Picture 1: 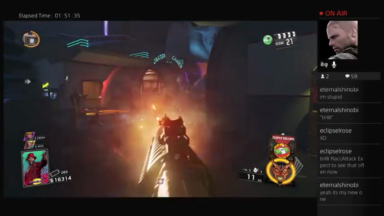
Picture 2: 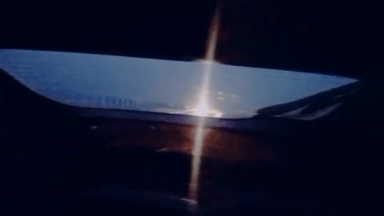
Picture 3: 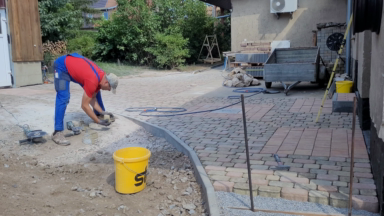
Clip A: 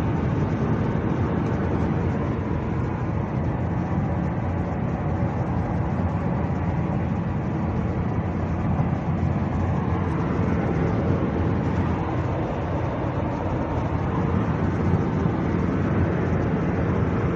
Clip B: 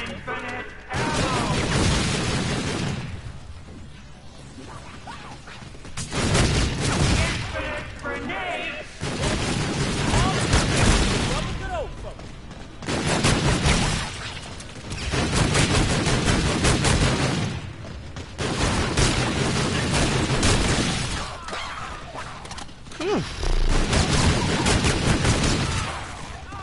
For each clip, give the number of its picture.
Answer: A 2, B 1